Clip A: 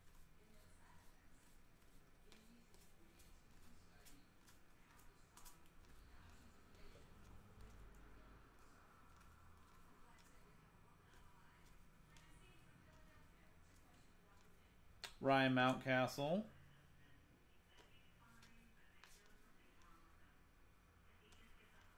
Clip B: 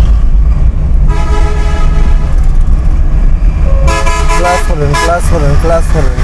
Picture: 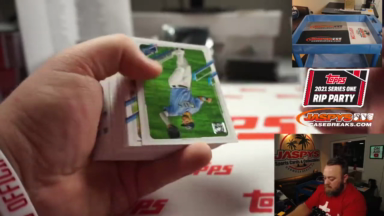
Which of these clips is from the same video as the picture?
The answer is A